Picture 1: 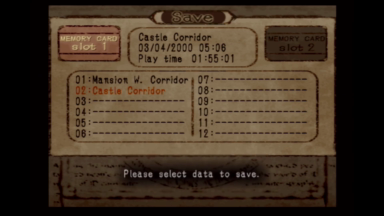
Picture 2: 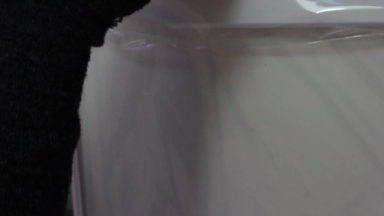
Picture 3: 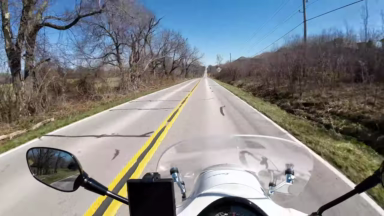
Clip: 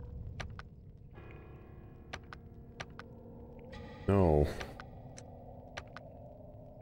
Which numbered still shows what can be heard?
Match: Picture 1